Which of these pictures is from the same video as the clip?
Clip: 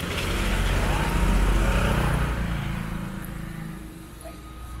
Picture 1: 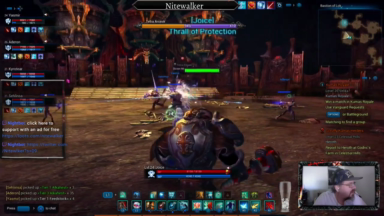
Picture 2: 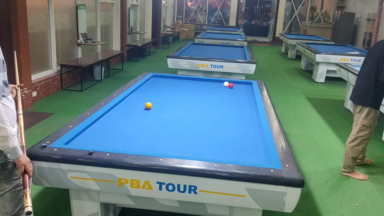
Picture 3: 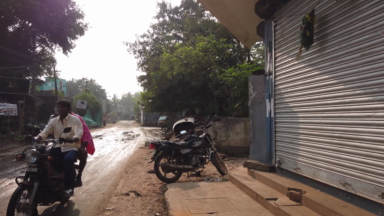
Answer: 3